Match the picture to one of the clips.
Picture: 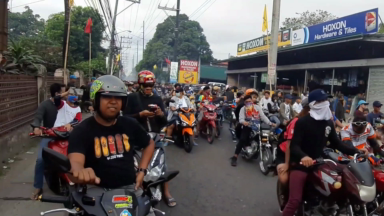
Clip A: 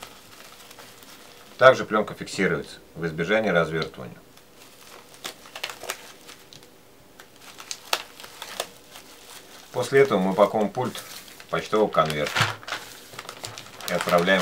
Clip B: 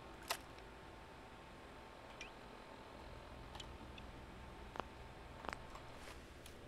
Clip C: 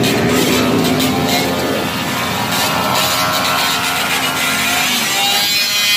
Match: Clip C